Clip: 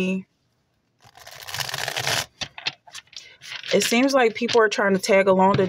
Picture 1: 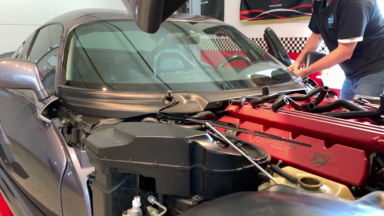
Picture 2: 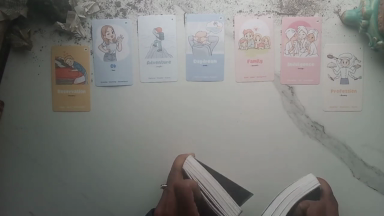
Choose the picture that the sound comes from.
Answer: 2